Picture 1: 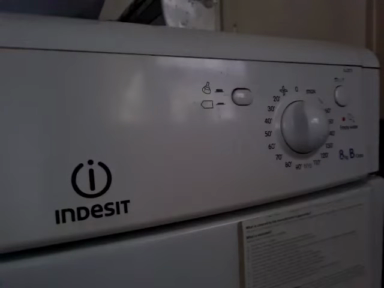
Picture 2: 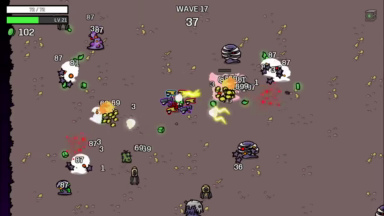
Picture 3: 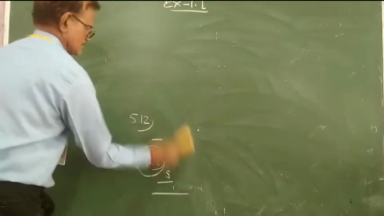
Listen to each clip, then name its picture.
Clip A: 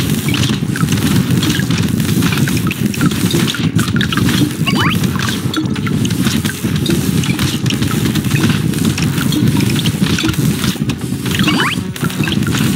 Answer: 2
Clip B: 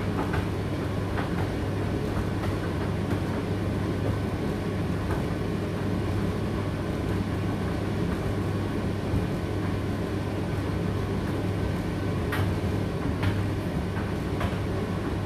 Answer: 1